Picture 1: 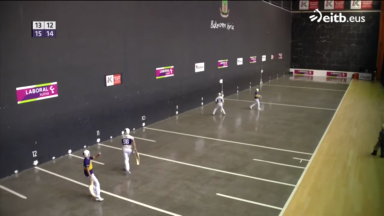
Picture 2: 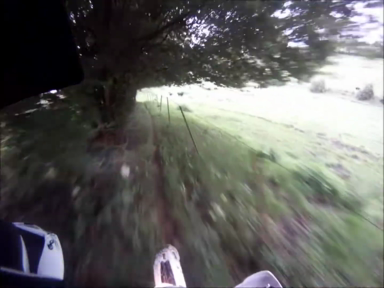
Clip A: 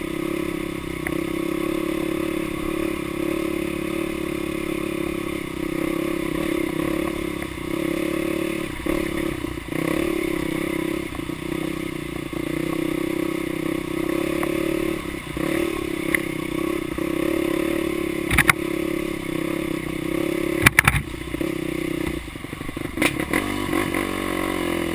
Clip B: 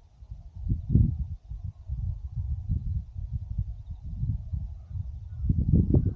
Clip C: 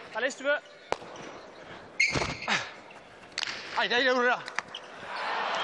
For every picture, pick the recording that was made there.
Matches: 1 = C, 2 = A